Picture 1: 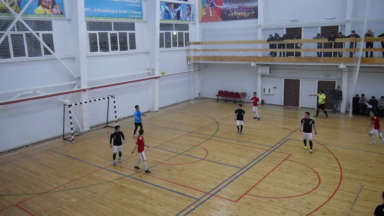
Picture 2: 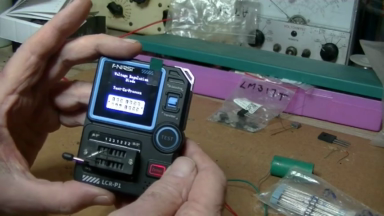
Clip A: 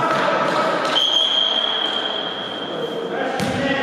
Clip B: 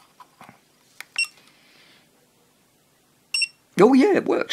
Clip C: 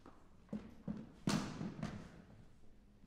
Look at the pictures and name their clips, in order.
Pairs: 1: A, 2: B